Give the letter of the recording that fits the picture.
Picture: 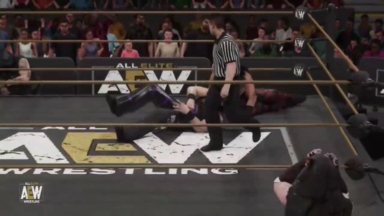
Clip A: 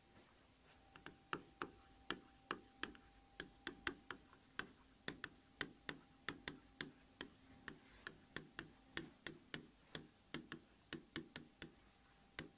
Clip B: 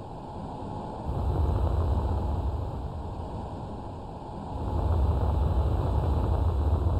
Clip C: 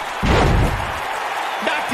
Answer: C